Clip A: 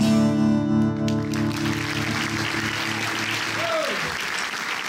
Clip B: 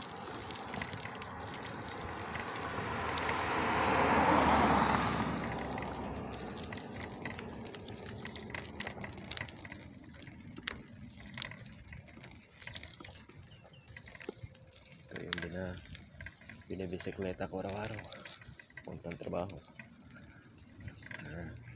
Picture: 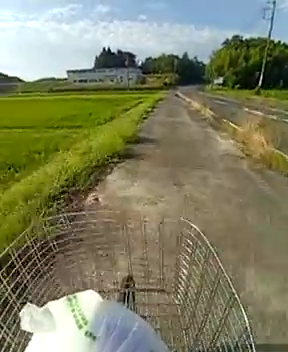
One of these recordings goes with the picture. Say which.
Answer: B